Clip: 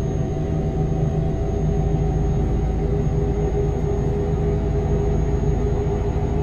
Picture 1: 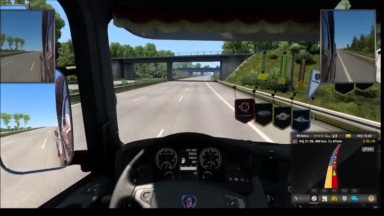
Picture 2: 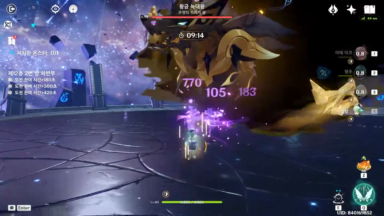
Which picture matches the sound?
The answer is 1